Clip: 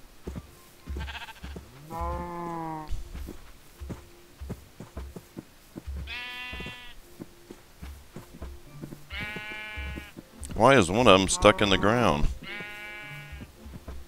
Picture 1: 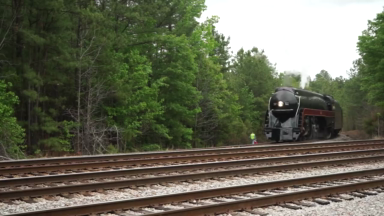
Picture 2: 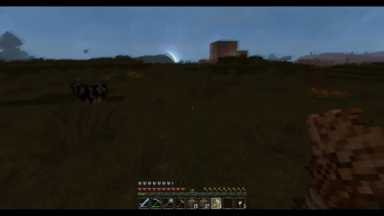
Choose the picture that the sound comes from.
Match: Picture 2